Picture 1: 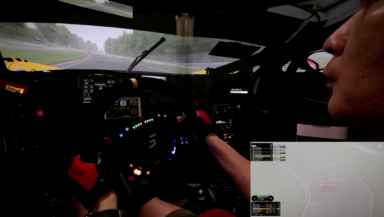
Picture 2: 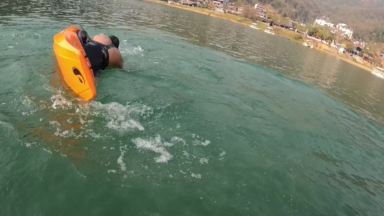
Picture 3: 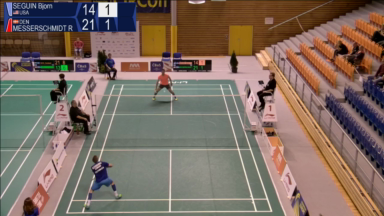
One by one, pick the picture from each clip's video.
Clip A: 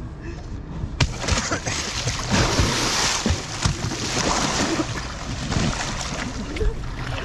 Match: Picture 2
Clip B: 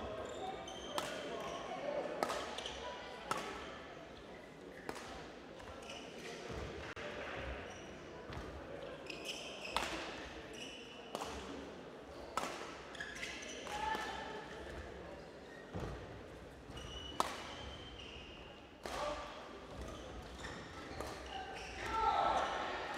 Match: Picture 3